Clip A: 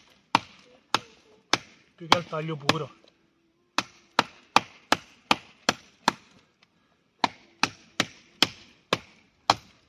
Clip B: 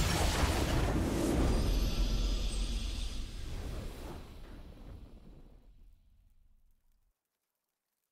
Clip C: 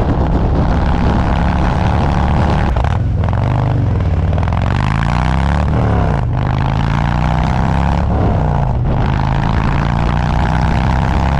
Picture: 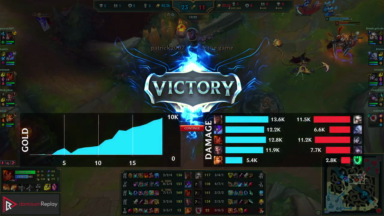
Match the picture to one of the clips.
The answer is B